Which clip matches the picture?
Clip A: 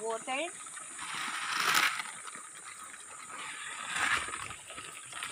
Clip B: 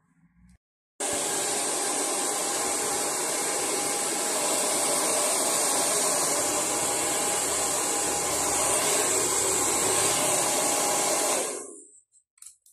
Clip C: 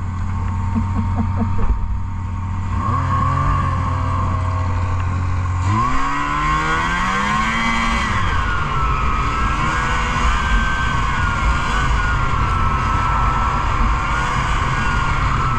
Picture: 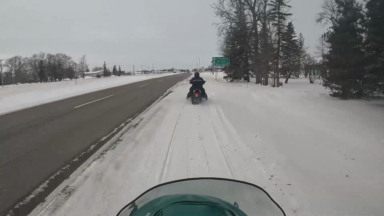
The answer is C